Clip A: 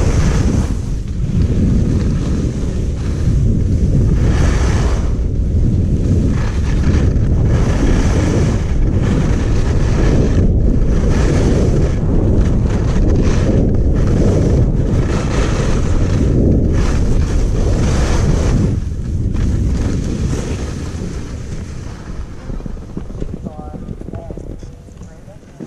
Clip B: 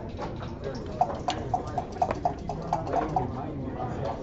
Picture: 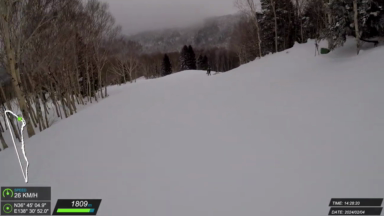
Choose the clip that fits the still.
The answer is A